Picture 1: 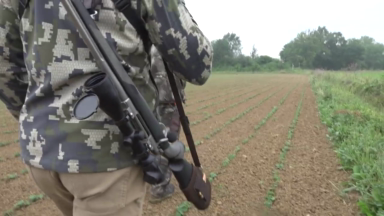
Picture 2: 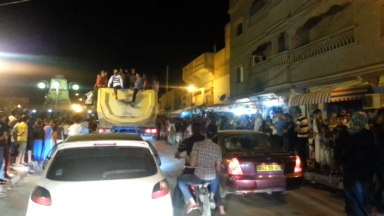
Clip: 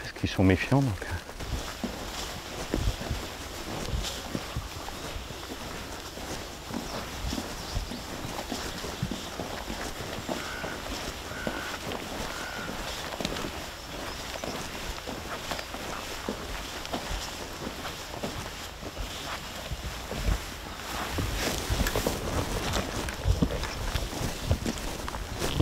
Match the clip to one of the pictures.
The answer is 1